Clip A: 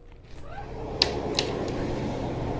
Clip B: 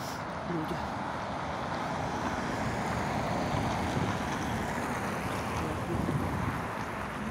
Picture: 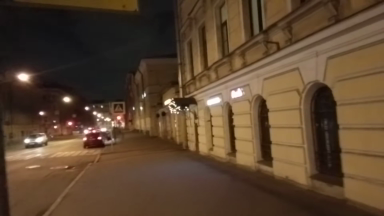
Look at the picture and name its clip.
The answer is B